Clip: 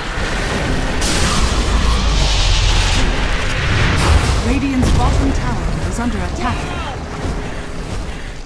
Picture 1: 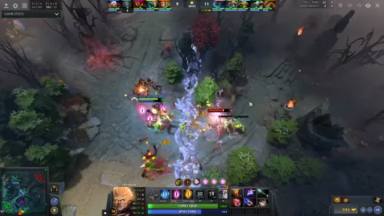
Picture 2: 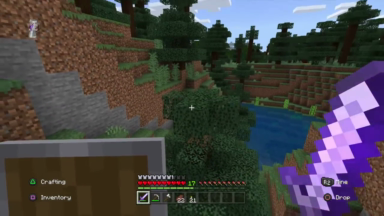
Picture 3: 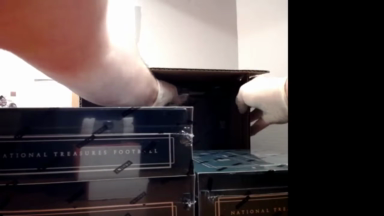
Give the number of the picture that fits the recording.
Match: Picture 1